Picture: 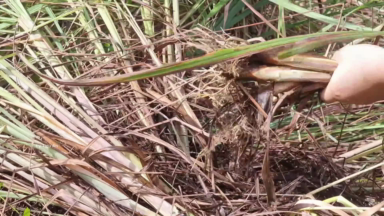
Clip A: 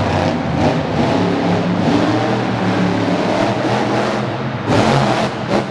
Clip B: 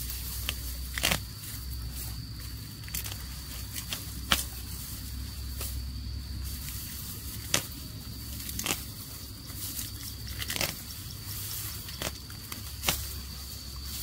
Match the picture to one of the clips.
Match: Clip B